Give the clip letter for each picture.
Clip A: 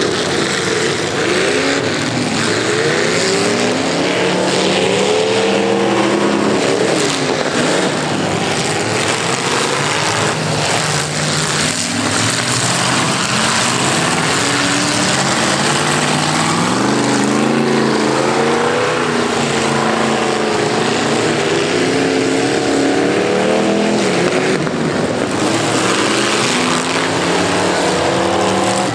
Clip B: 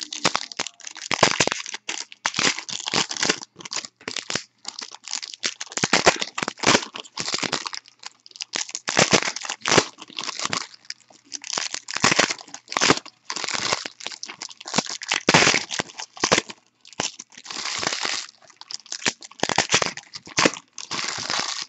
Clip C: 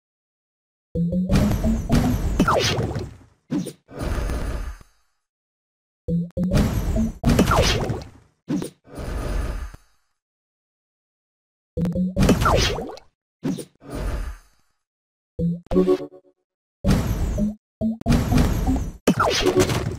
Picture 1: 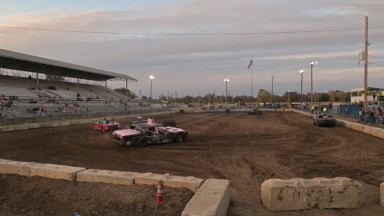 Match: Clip A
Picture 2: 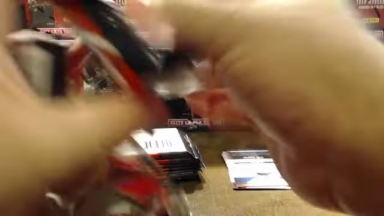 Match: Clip B